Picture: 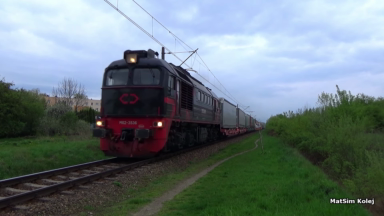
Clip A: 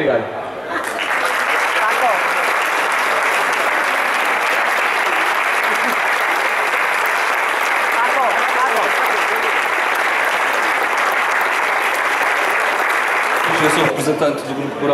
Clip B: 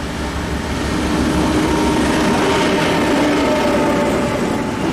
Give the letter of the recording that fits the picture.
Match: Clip B